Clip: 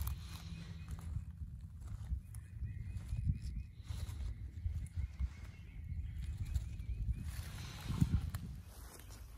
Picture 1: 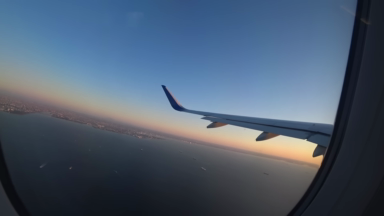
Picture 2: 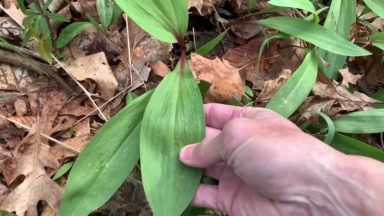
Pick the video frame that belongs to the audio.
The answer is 2